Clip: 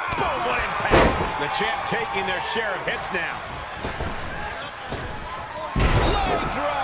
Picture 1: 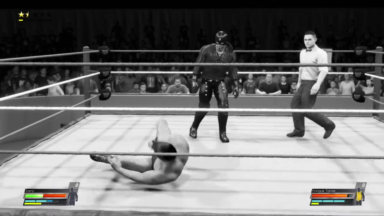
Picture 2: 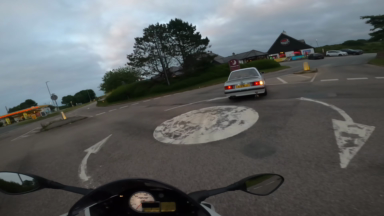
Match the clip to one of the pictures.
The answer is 1